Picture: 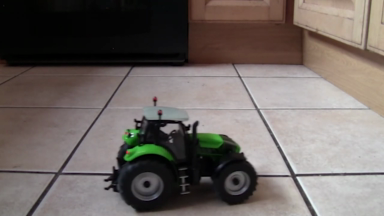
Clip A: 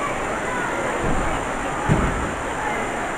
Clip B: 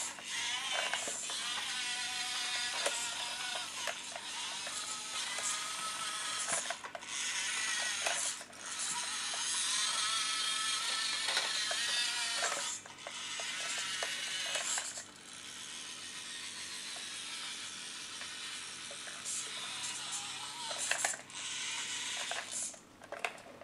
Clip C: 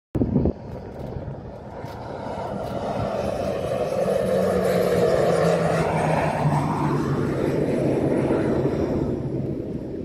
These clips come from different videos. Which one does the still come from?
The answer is B